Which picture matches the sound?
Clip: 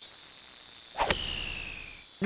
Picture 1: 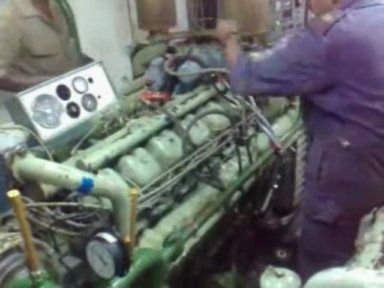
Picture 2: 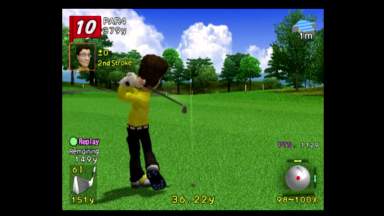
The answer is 2